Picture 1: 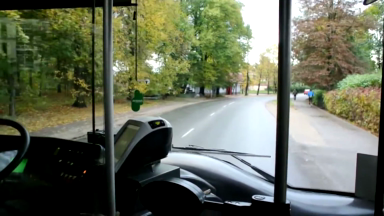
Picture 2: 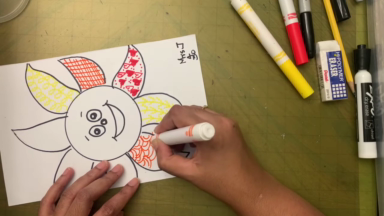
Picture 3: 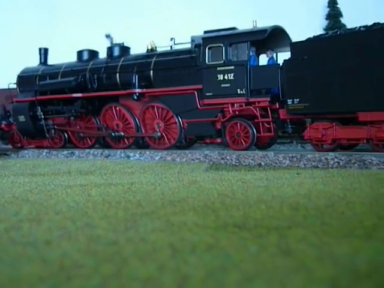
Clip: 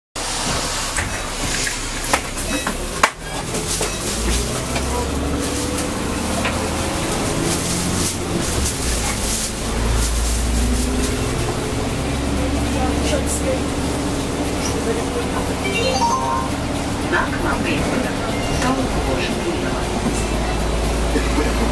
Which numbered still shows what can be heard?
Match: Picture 1